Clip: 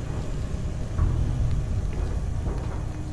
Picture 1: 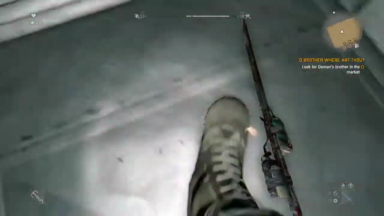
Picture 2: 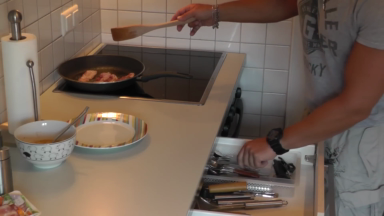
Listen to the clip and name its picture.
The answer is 1